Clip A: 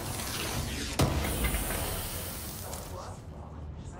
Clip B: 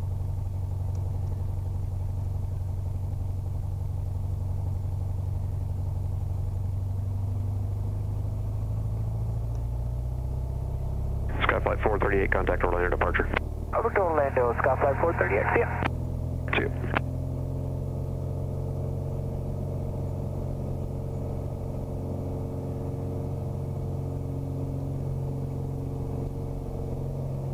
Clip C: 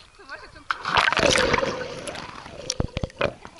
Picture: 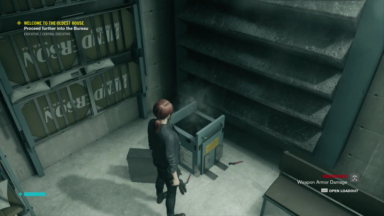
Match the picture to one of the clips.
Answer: A